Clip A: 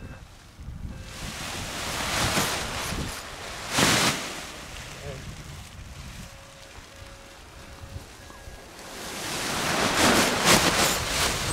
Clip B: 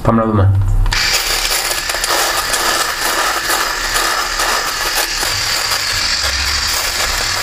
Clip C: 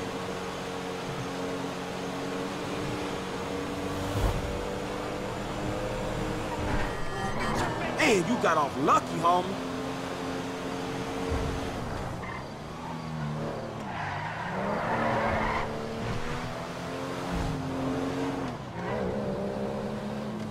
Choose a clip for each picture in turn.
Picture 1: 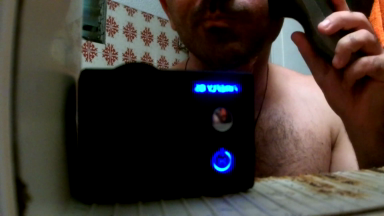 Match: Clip B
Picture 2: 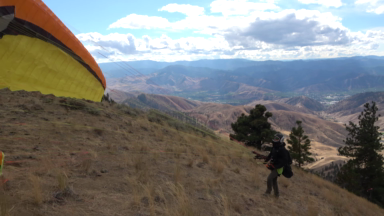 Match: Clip A